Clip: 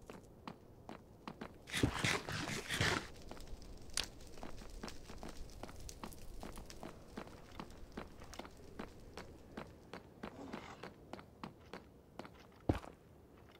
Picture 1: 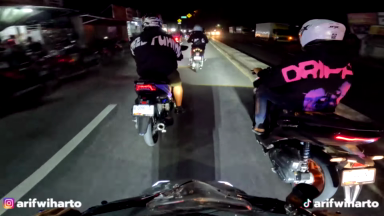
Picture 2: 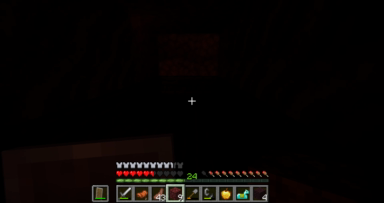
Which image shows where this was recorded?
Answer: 2